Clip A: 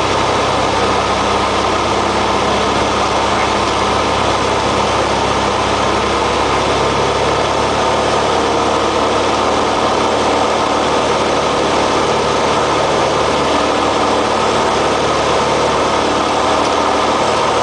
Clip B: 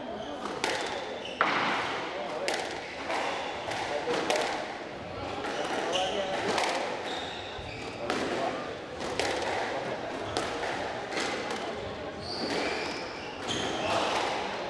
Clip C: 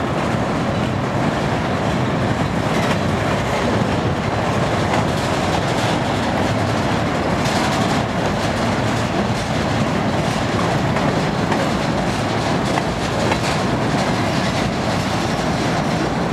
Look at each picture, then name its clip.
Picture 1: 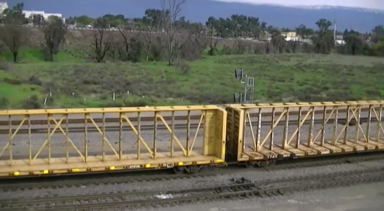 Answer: C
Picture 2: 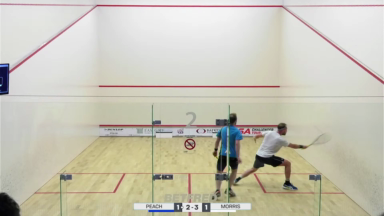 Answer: B